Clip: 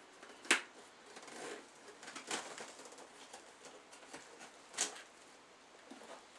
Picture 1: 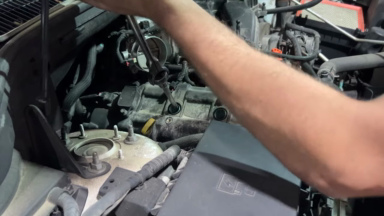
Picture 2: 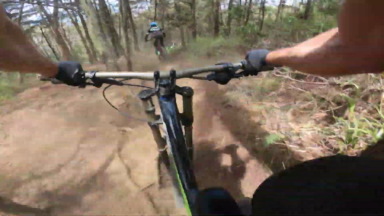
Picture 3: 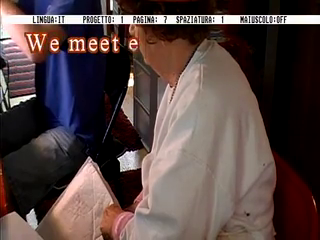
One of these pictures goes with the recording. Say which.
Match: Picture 3